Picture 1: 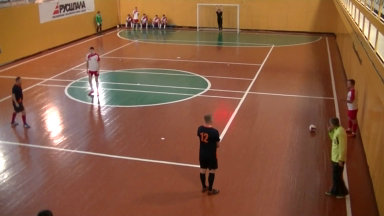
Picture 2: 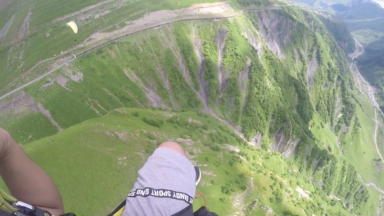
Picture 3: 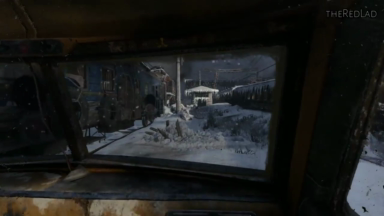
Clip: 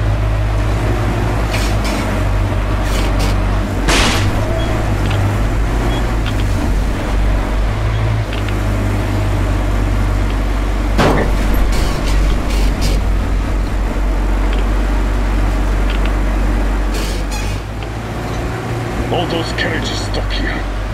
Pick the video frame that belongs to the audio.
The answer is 3